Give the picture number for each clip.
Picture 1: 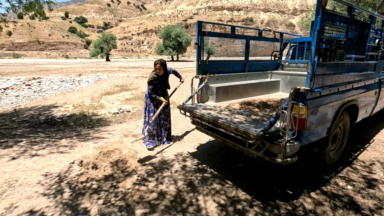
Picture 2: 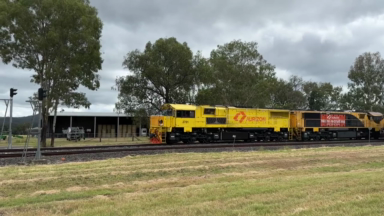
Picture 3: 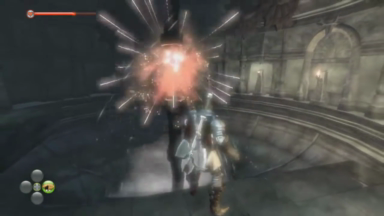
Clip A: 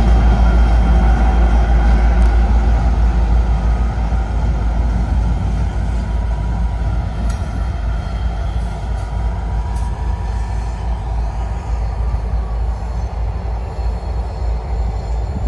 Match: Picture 2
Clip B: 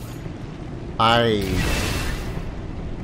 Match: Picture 3